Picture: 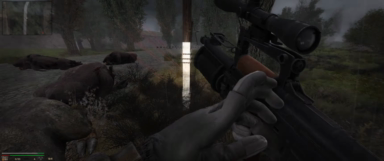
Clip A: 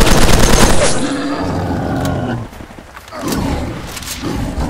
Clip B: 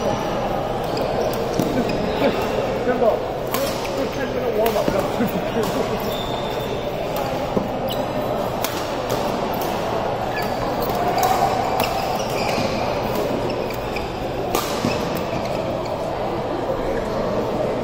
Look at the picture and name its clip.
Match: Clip A